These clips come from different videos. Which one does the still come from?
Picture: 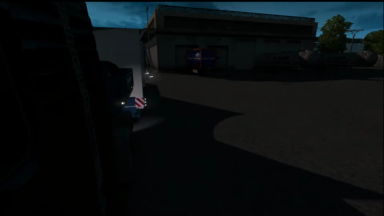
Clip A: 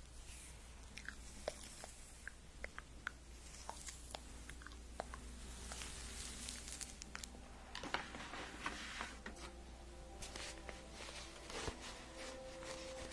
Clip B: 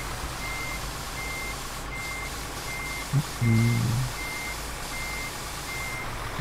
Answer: B